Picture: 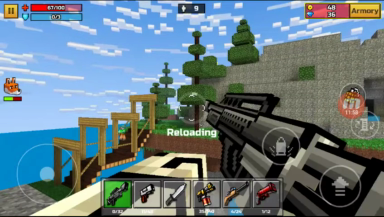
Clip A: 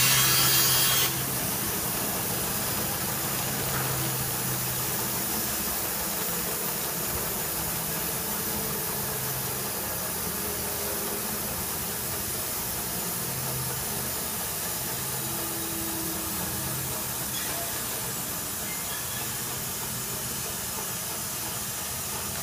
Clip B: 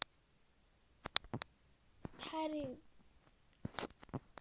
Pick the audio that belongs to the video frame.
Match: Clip B